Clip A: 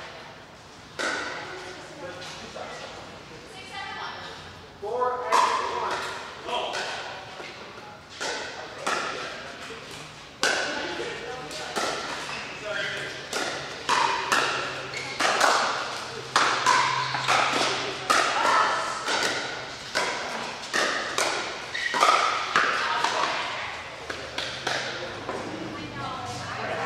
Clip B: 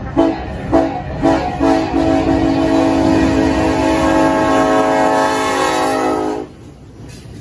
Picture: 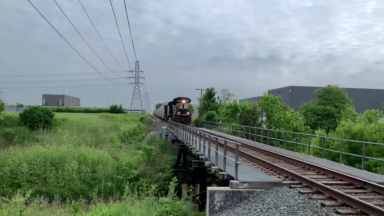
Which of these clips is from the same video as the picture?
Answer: B